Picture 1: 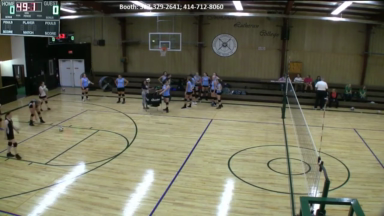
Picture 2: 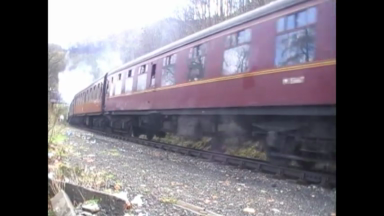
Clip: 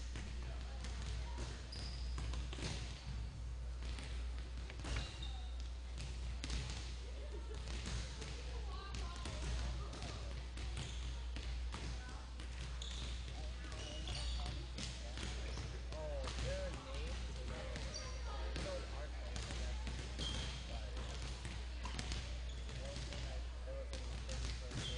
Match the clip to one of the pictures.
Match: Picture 1